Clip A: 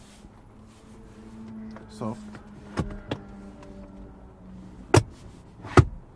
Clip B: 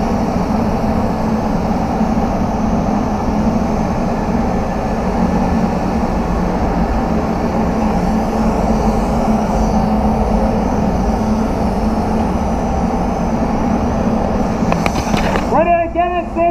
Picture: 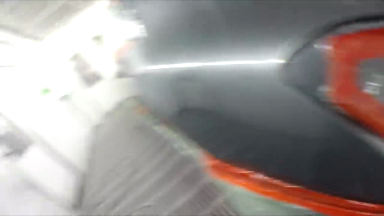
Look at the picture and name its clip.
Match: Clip B